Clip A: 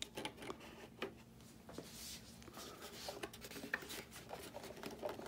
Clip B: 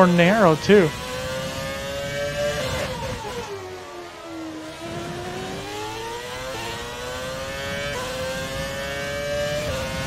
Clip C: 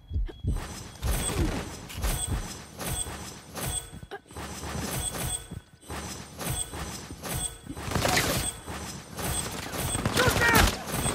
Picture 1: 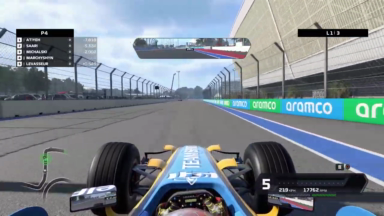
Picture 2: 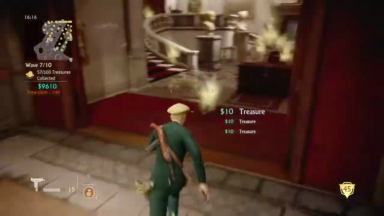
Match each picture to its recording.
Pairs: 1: B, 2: C